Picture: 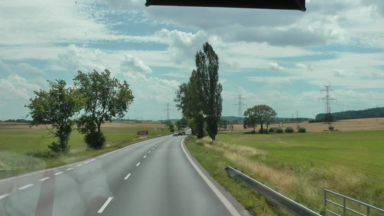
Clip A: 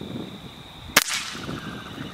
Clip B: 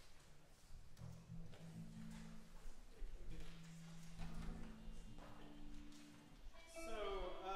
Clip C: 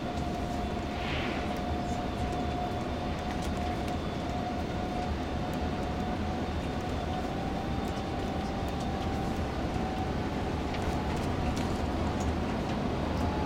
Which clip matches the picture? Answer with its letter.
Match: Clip C